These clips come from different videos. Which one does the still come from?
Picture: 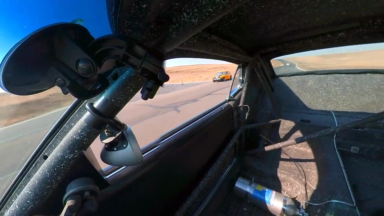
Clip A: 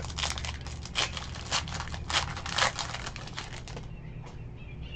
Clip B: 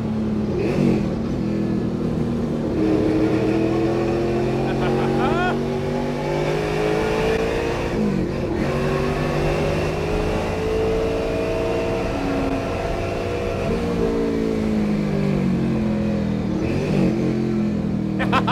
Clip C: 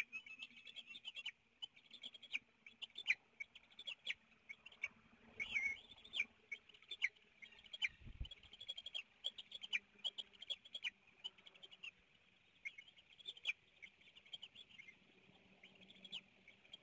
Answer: B